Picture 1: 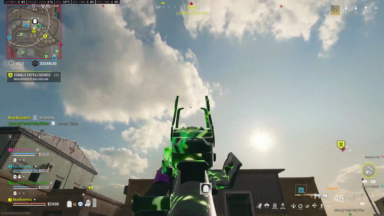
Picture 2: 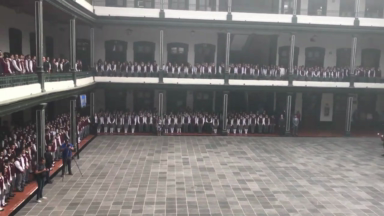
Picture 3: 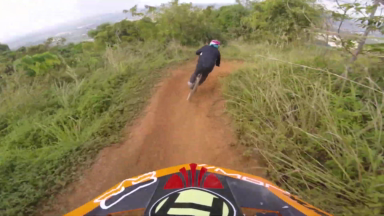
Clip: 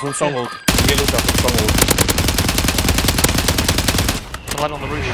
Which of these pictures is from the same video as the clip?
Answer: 1